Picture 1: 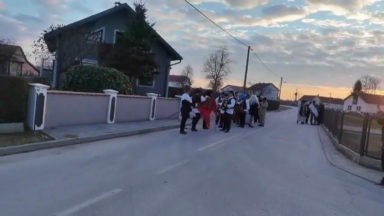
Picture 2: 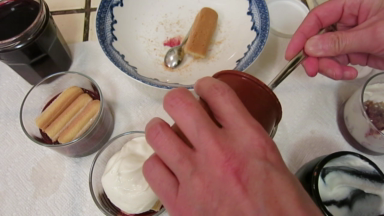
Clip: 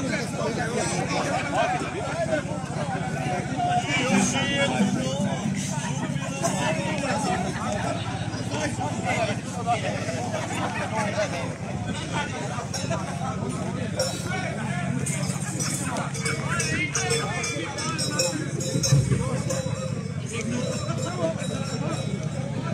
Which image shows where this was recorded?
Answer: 1